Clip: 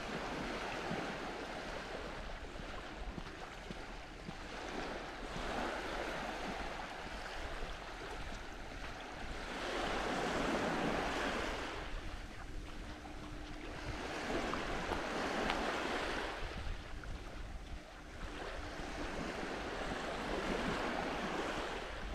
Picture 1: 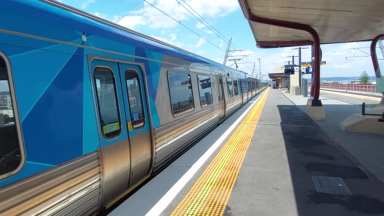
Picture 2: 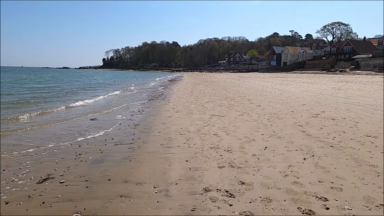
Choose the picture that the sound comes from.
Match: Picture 2